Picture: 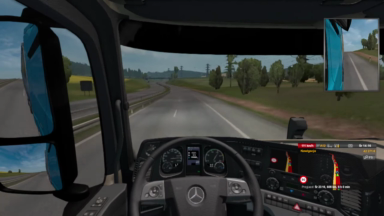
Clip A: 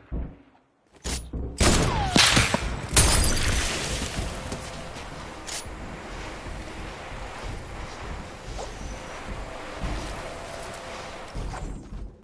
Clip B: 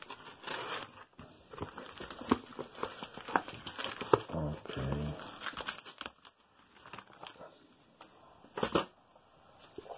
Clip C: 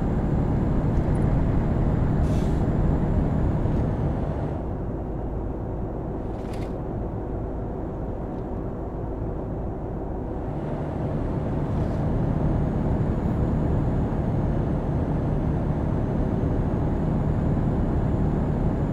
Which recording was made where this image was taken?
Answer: C